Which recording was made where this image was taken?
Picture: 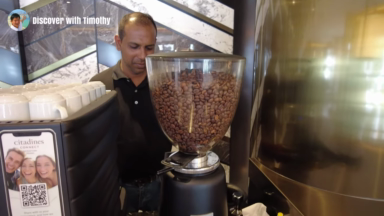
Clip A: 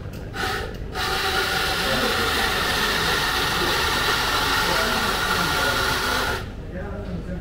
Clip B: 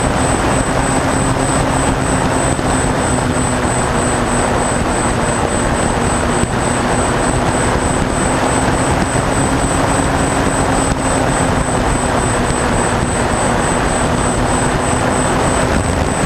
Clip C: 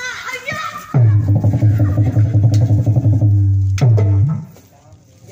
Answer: A